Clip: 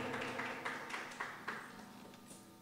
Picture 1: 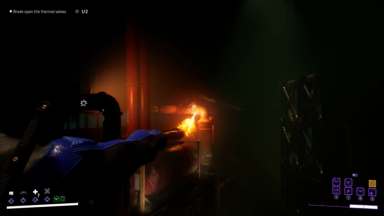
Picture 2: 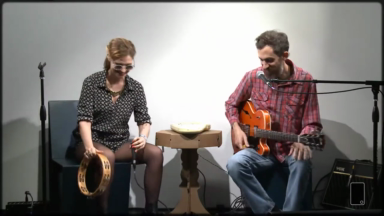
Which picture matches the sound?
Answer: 2